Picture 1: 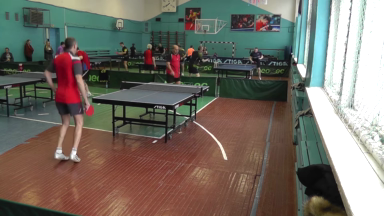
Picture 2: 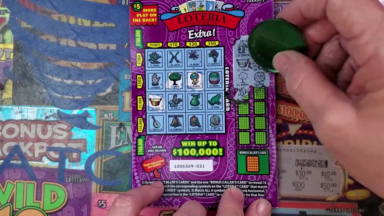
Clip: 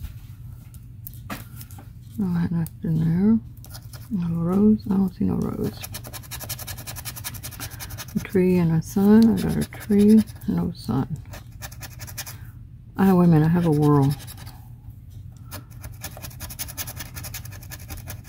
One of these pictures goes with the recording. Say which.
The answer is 2